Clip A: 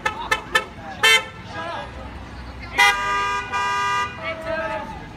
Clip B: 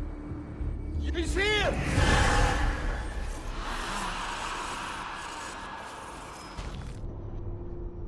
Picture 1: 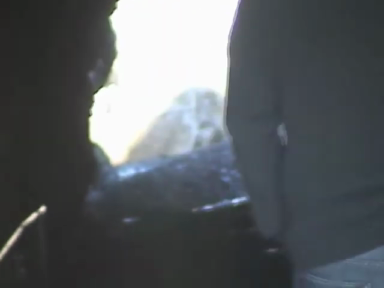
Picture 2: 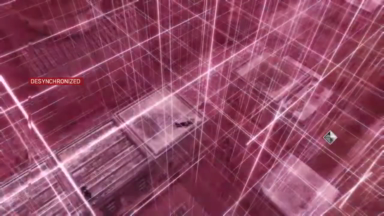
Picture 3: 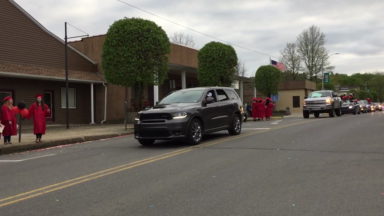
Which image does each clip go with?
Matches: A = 3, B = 2